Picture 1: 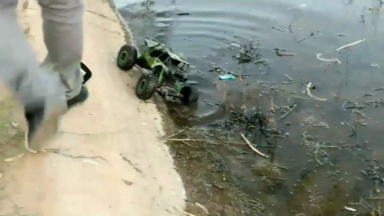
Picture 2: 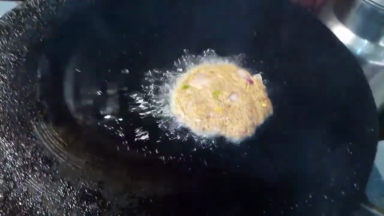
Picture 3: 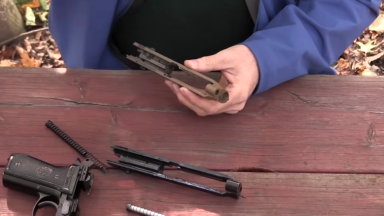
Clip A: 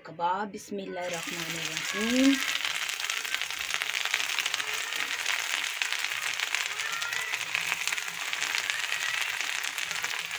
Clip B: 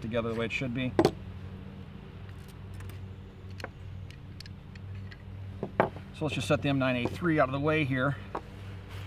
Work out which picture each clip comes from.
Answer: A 2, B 3